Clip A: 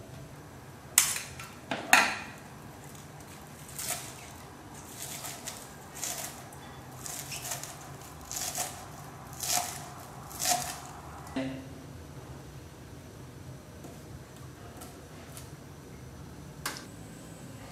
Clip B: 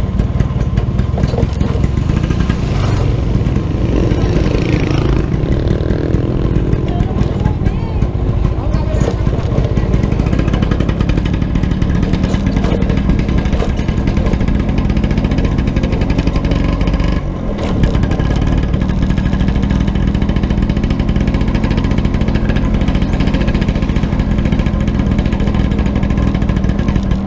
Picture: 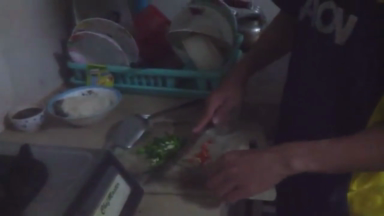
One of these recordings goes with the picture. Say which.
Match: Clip A